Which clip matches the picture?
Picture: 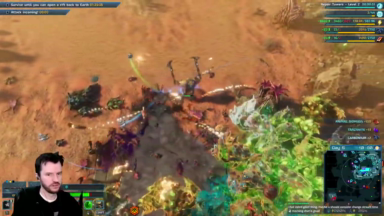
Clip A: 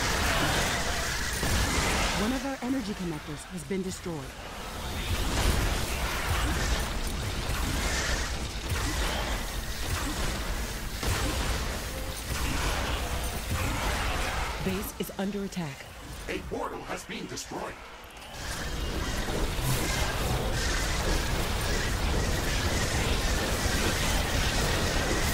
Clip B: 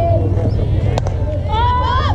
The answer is A